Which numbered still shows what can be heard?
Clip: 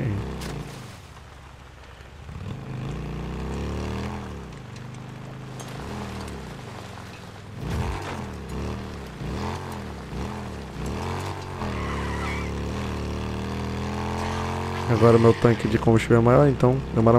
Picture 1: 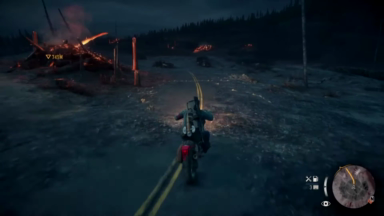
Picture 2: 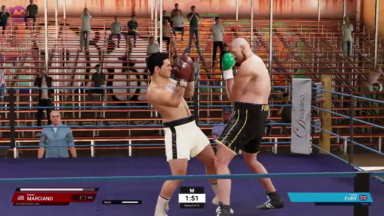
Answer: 1